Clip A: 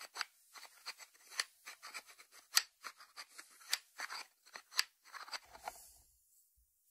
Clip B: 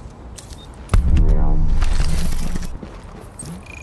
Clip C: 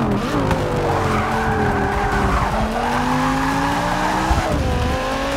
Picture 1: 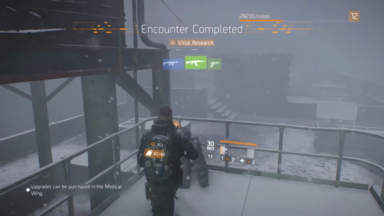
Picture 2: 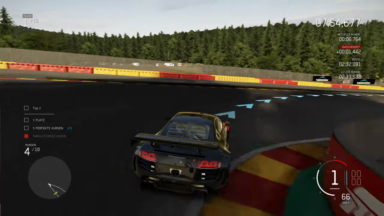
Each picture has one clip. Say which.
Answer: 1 B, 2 C